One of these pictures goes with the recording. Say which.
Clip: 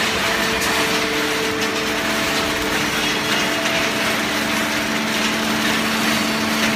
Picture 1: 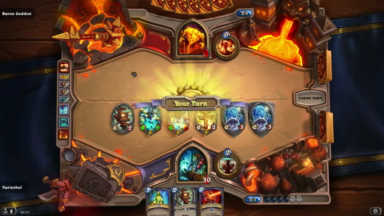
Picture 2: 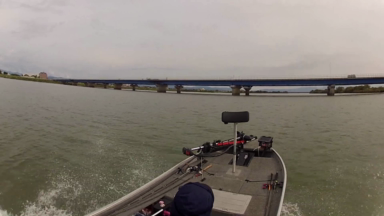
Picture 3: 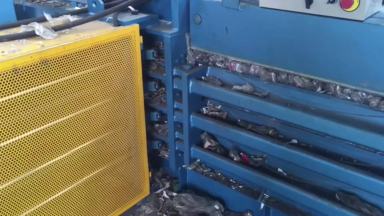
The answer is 3